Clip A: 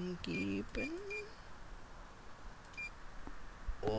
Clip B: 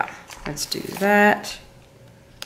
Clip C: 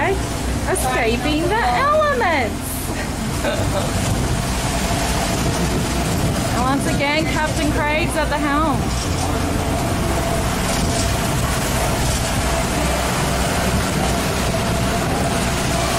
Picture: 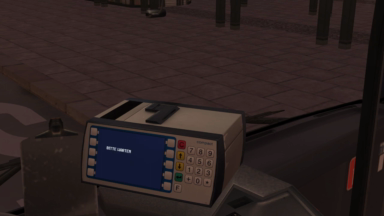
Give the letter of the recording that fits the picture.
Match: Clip A